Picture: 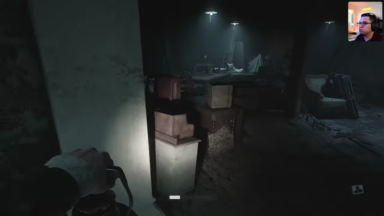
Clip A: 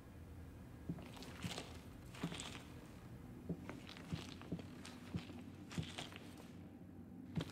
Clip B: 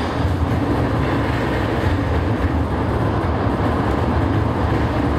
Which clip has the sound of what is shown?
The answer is A